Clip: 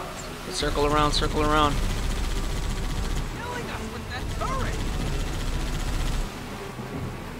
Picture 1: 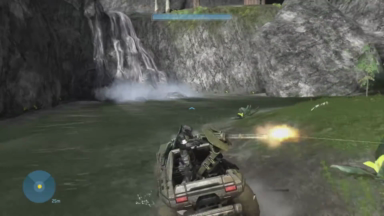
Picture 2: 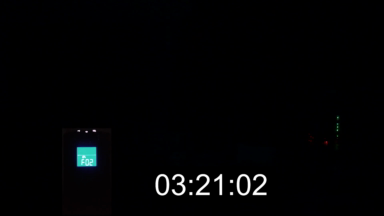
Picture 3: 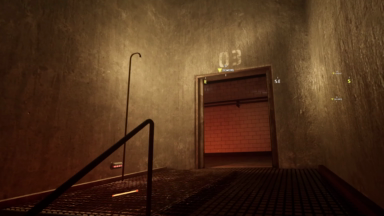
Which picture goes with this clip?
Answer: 1